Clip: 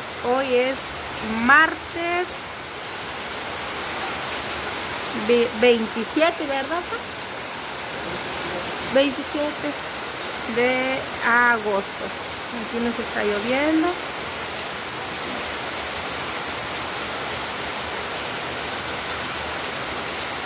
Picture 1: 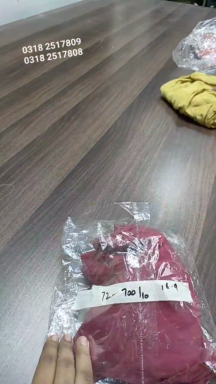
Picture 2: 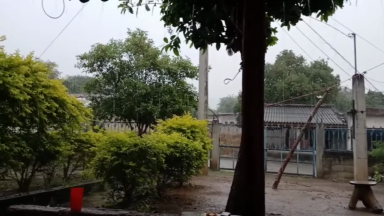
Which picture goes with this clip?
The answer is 2